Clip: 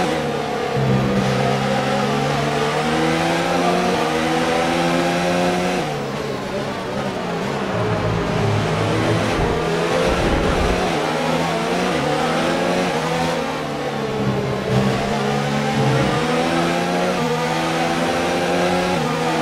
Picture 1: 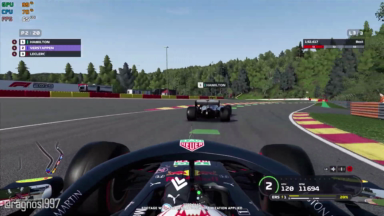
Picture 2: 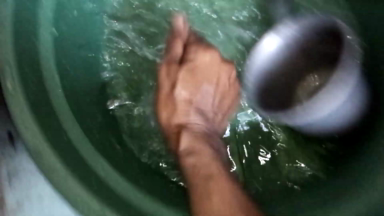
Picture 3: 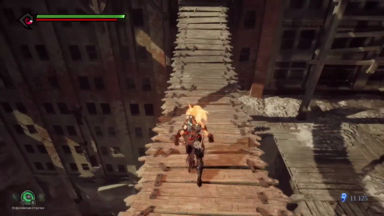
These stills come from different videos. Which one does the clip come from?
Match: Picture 1